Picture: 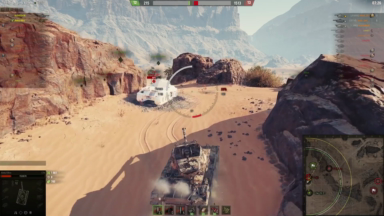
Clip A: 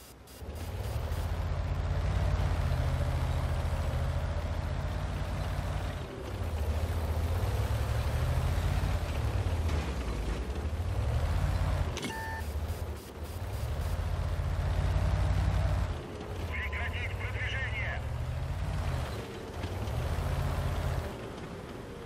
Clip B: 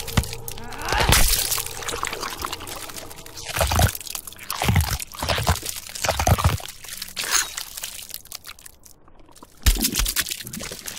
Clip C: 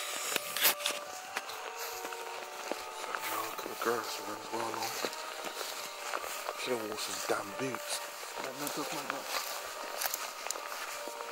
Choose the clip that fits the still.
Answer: A